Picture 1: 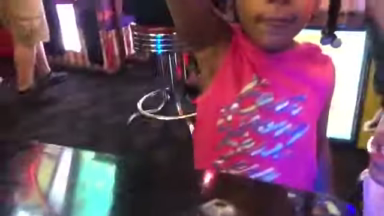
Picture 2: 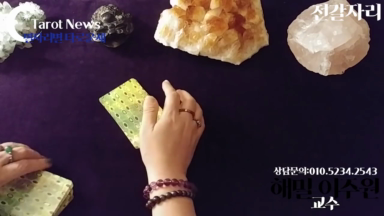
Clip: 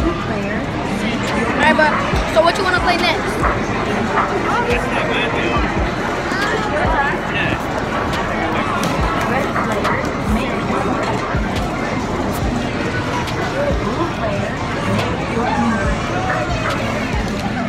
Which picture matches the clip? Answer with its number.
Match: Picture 1